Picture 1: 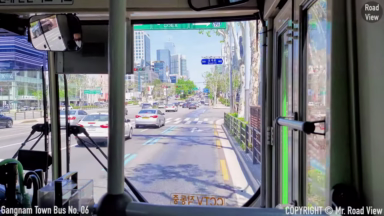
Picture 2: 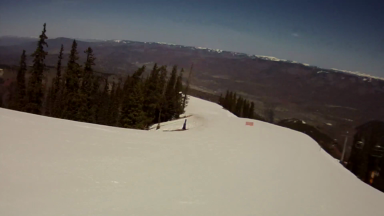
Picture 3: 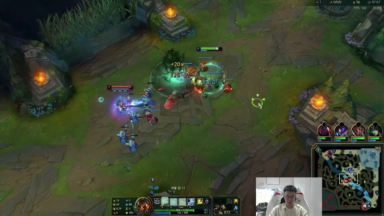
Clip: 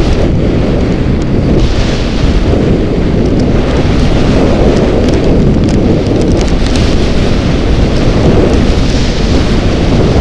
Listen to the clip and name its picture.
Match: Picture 2